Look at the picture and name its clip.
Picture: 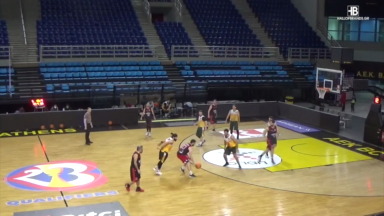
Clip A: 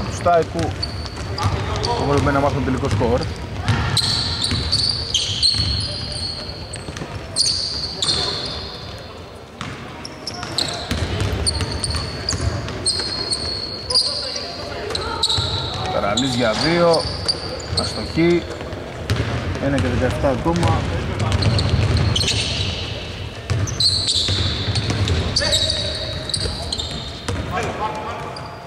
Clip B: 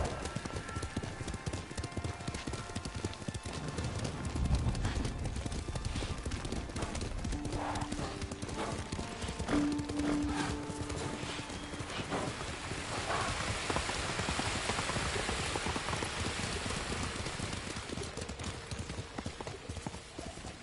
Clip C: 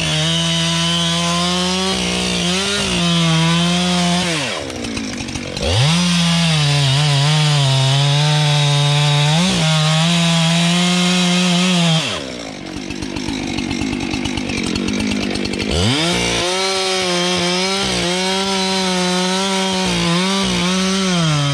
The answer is A